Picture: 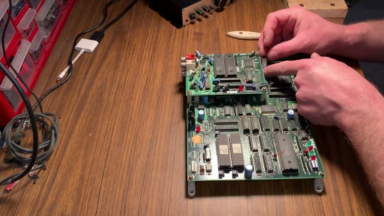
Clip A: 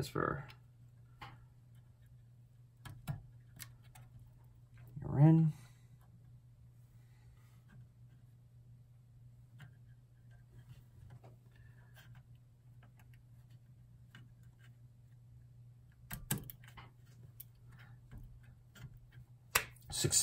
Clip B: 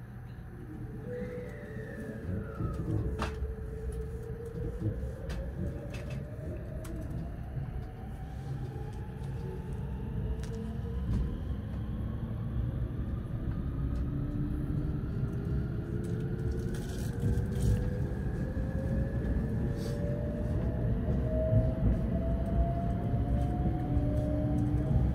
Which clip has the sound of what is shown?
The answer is A